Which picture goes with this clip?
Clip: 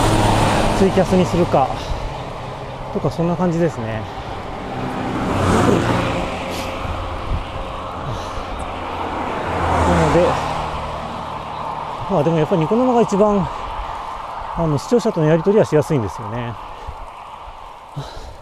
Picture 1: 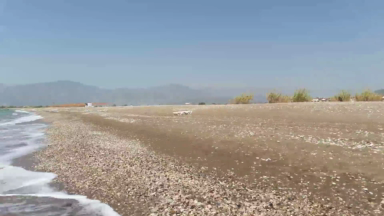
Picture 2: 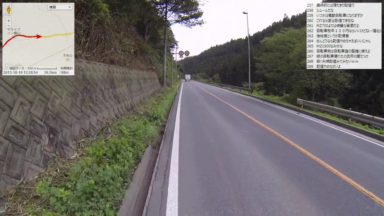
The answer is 2